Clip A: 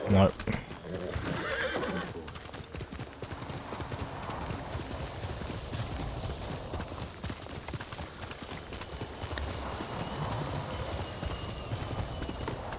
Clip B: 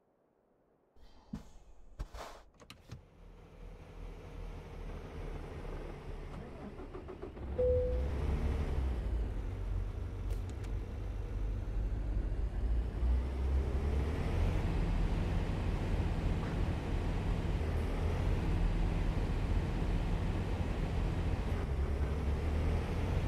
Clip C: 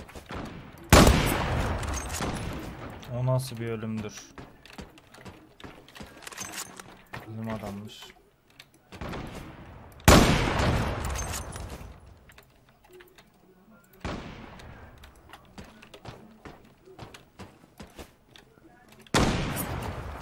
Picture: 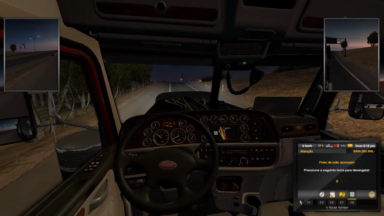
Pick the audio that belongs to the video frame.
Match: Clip B